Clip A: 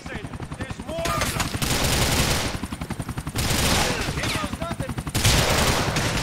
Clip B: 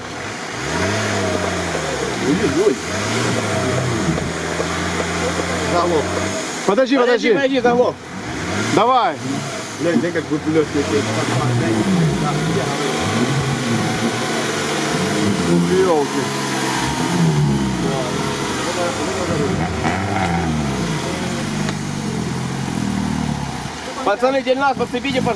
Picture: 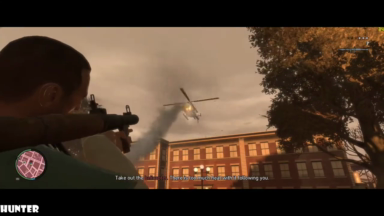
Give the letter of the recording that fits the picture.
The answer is A